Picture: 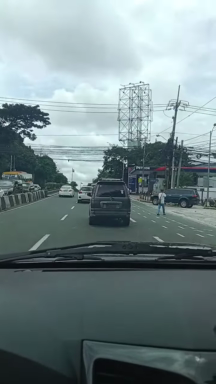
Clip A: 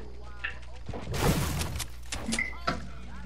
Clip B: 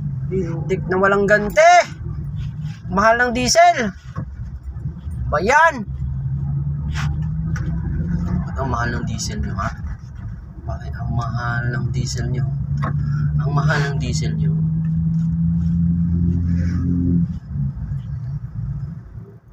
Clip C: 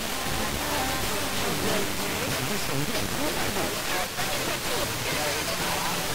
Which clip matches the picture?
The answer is B